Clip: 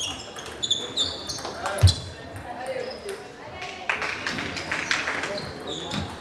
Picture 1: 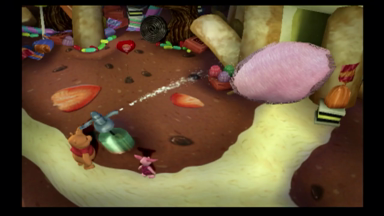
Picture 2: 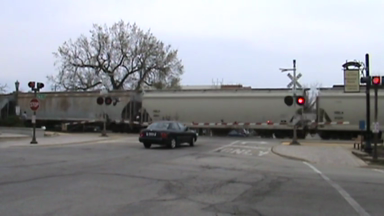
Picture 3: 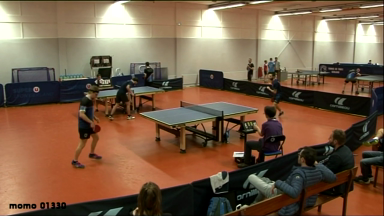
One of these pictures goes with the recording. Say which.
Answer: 3